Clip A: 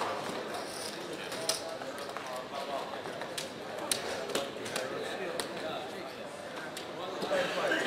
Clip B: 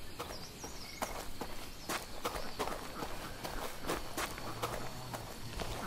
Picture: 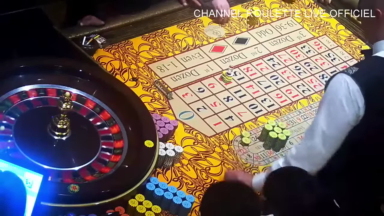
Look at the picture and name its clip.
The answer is A